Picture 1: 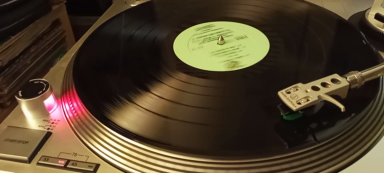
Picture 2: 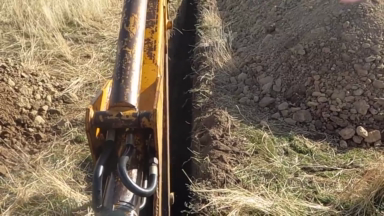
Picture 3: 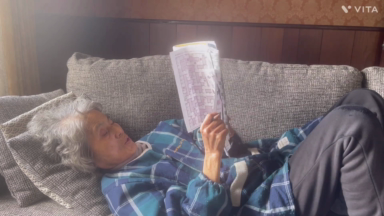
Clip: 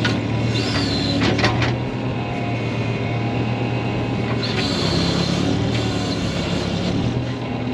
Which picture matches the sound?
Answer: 2